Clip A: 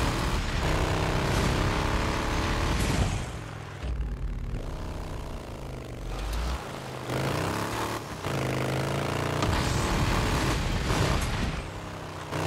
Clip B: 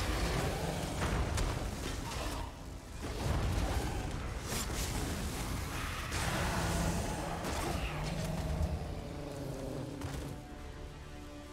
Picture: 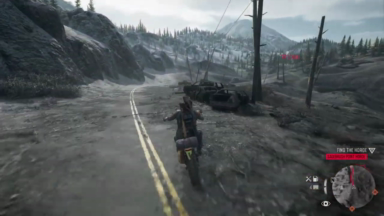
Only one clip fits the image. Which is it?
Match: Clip A